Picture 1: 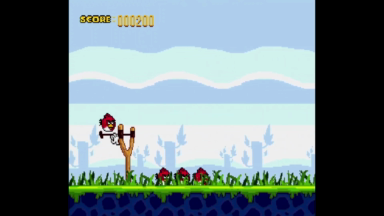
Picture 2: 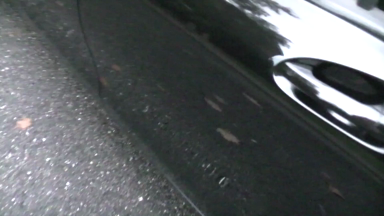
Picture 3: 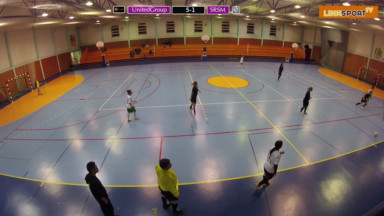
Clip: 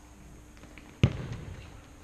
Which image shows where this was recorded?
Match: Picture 3